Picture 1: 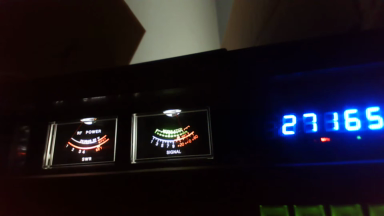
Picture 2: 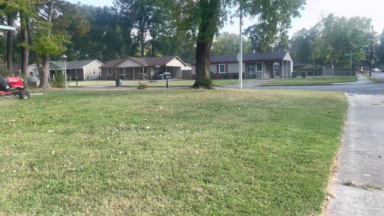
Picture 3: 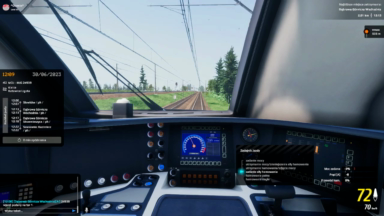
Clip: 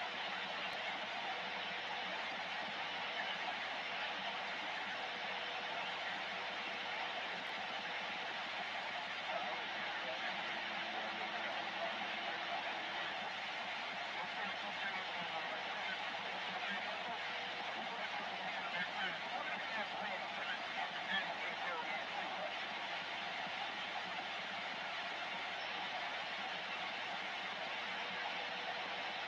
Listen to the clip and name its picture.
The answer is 1